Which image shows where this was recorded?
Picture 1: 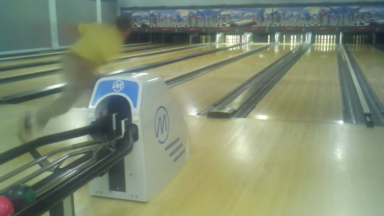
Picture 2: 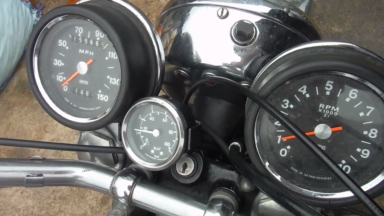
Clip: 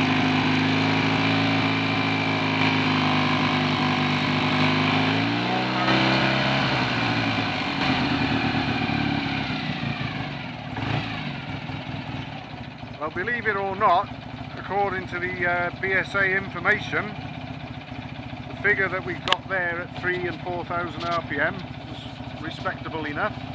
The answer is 2